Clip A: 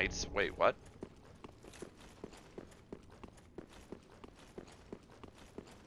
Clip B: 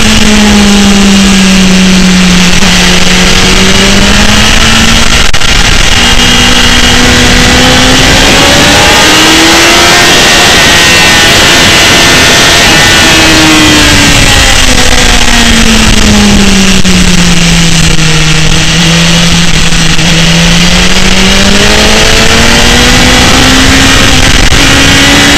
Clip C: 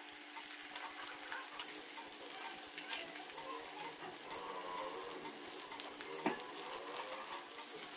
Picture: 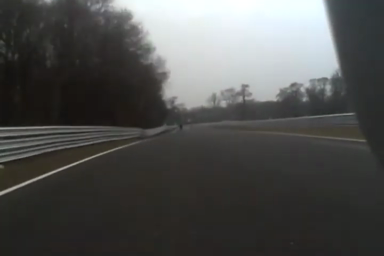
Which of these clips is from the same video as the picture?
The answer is B